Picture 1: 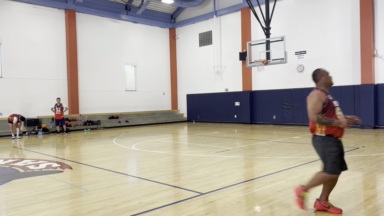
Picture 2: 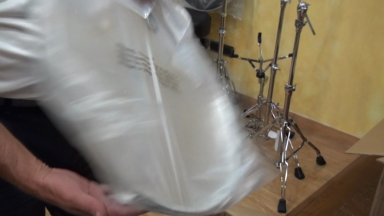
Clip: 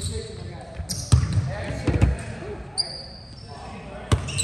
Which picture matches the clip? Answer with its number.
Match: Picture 1